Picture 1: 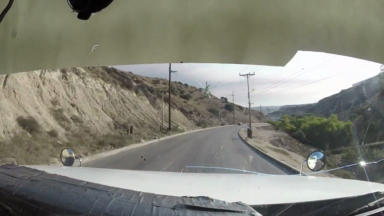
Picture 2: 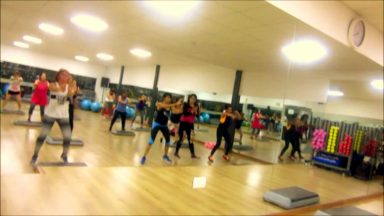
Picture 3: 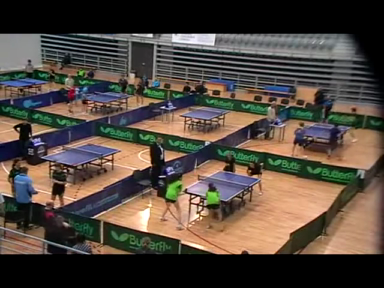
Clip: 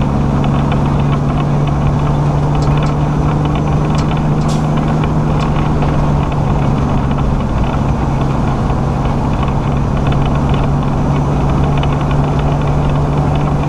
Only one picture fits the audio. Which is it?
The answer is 1